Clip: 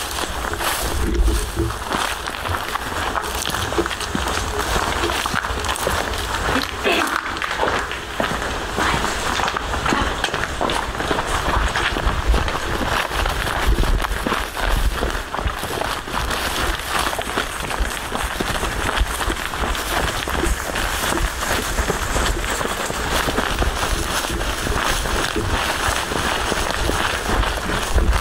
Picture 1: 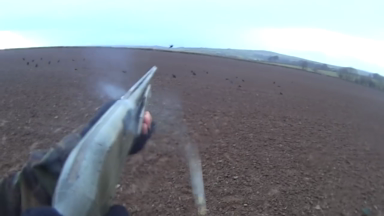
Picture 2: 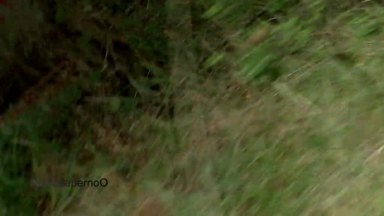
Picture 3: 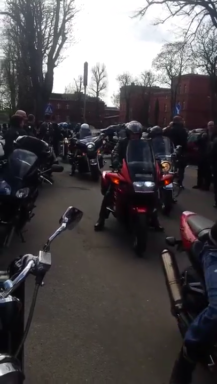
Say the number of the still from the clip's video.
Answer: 2